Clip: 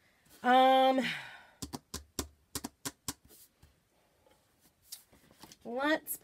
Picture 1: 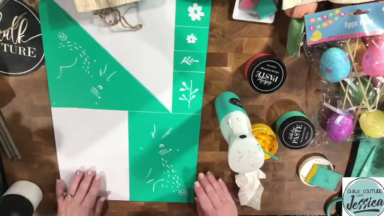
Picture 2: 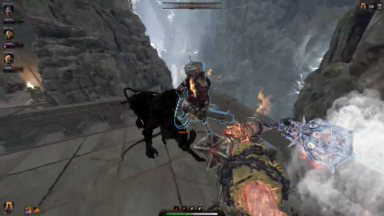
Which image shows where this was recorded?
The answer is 1